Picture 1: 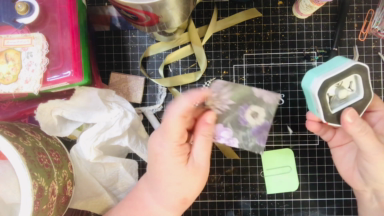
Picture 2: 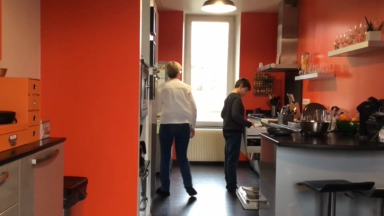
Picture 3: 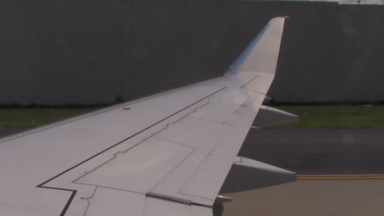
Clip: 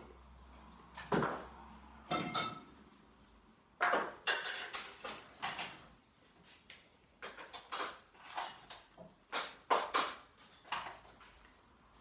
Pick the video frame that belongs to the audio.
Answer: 2